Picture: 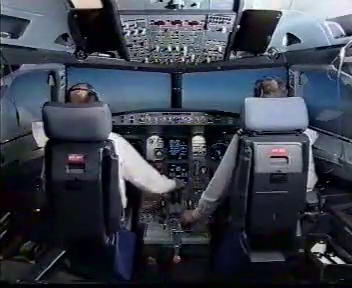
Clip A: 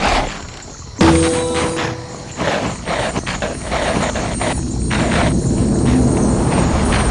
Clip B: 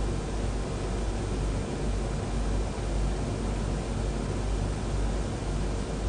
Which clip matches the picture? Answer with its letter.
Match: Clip B